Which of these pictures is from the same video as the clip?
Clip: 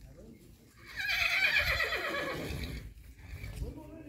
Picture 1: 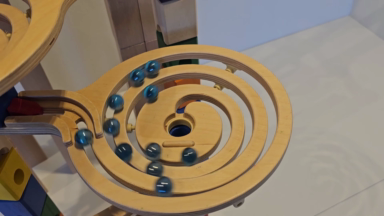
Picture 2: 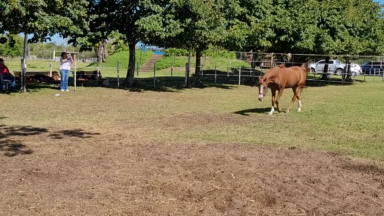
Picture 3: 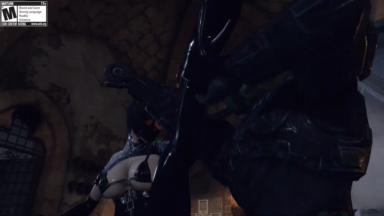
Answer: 2